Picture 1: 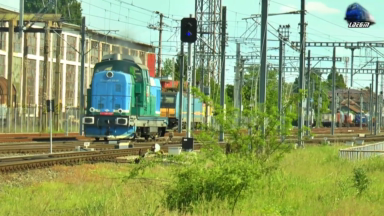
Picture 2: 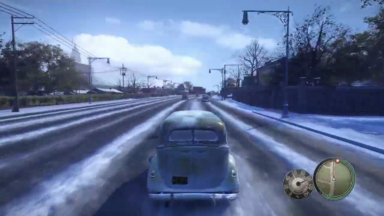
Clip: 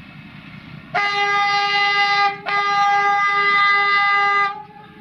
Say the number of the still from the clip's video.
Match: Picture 1